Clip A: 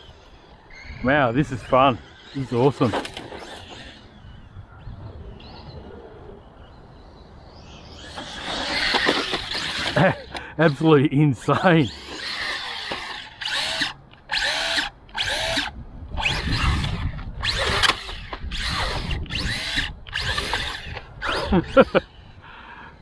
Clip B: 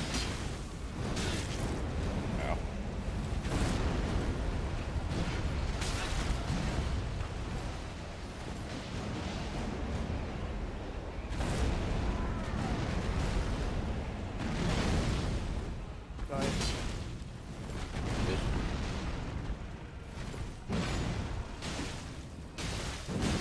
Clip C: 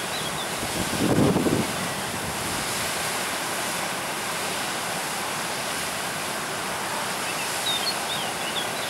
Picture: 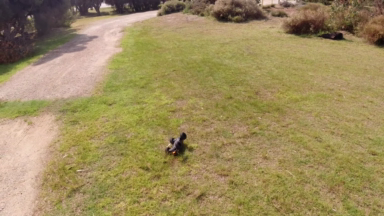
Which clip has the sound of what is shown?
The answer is A